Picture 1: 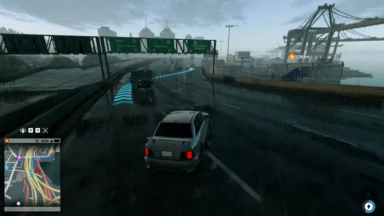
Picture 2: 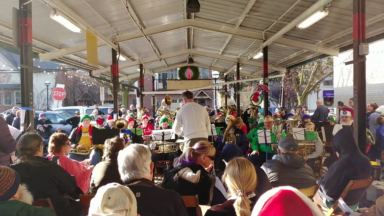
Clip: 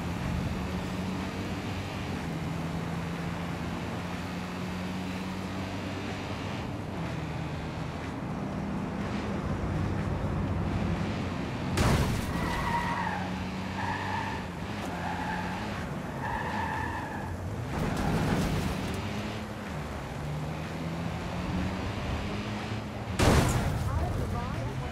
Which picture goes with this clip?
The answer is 1